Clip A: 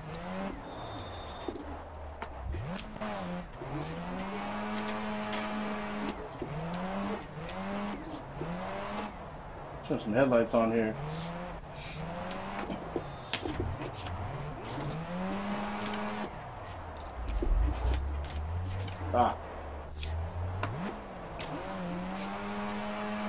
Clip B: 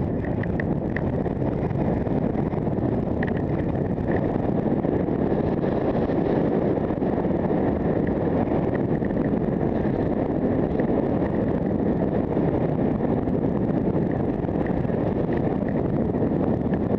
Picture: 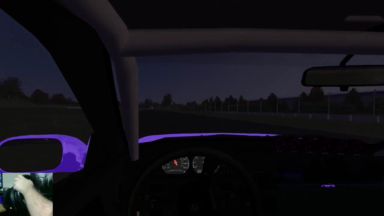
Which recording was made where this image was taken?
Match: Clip A